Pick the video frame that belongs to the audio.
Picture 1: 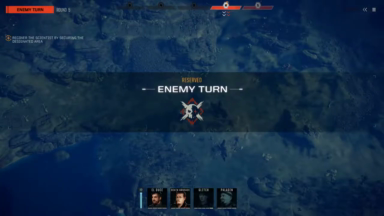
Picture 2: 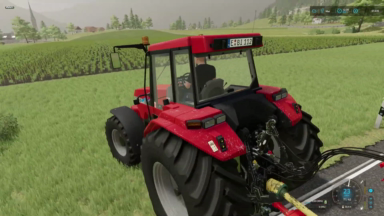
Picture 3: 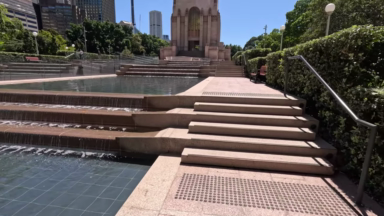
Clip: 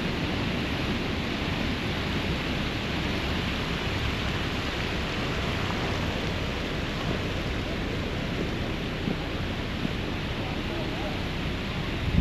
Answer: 3